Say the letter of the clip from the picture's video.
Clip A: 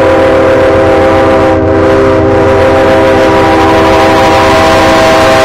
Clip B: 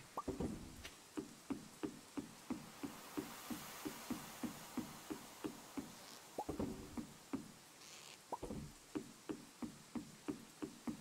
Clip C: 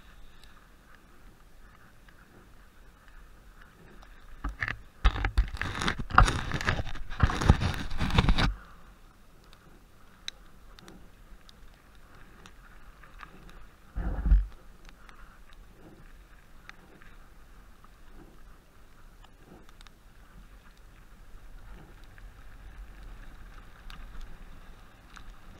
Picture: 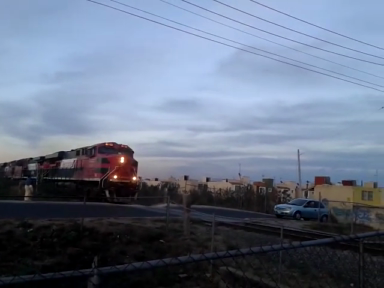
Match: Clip A